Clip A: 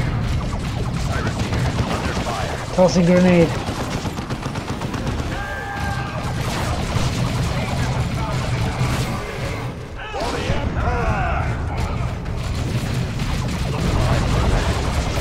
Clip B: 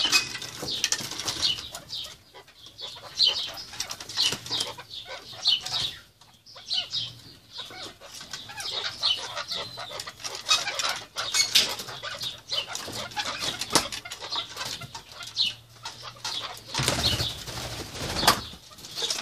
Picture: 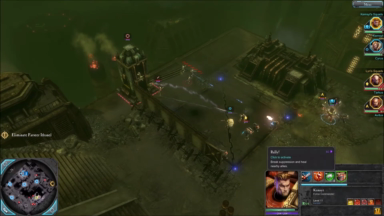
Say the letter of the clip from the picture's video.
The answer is A